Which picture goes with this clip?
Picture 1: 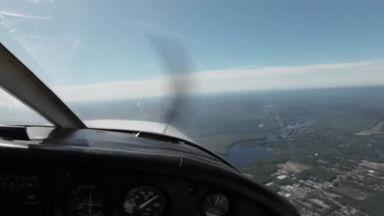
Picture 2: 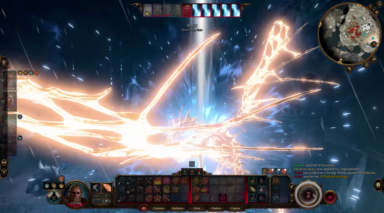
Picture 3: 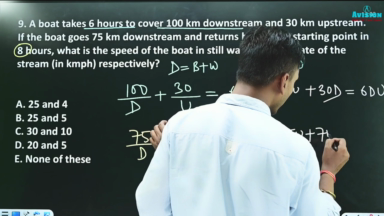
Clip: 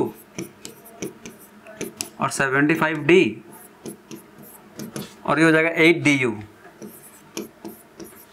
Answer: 3